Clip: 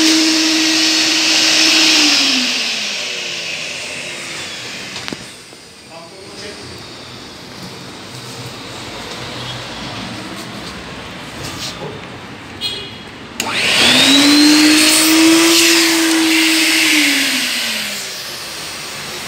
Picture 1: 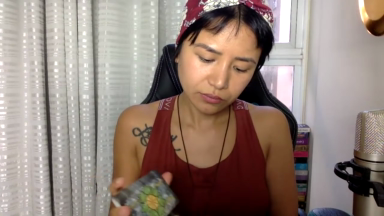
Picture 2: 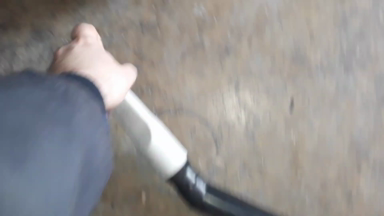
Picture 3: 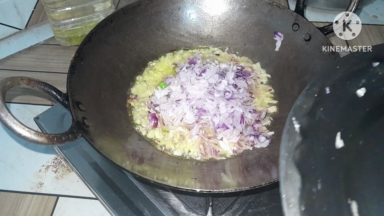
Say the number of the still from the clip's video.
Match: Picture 2